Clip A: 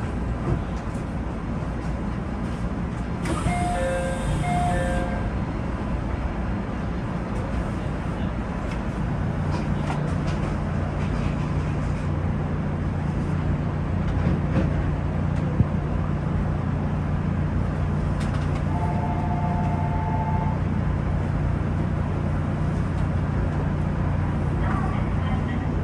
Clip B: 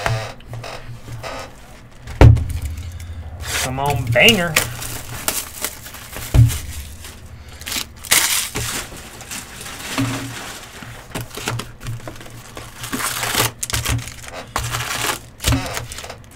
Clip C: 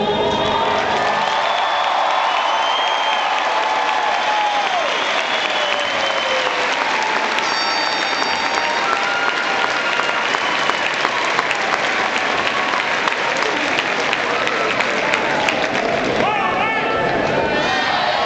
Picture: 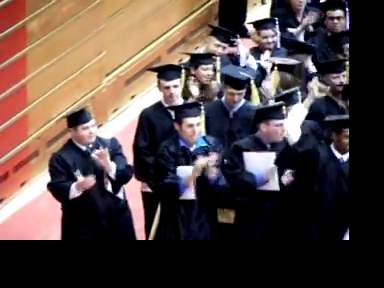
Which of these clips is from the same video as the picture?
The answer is C